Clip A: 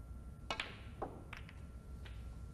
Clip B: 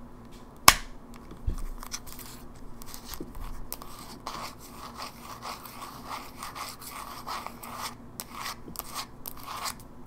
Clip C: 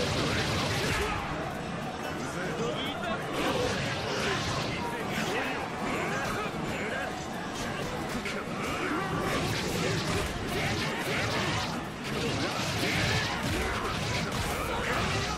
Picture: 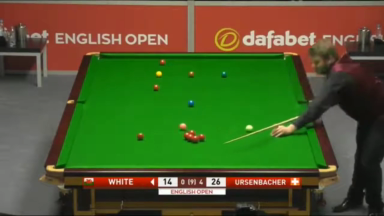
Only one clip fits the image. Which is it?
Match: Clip A